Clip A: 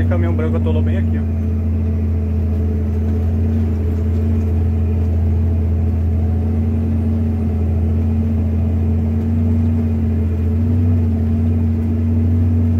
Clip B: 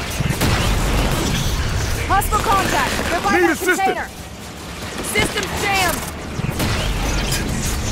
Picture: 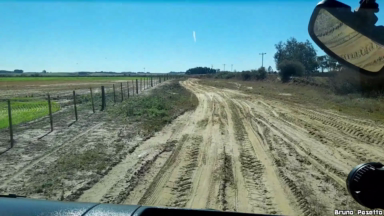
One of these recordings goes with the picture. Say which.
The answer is A